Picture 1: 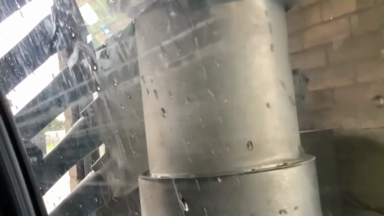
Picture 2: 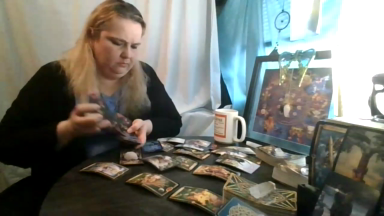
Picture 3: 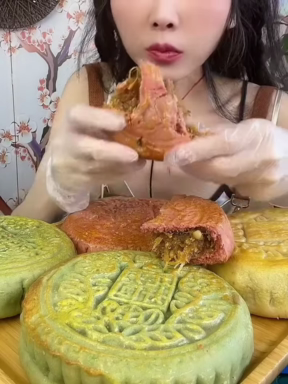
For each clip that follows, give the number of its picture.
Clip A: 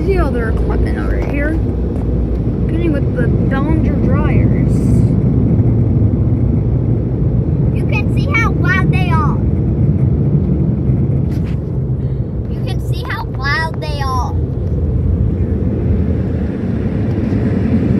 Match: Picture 1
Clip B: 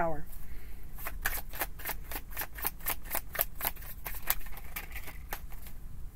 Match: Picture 2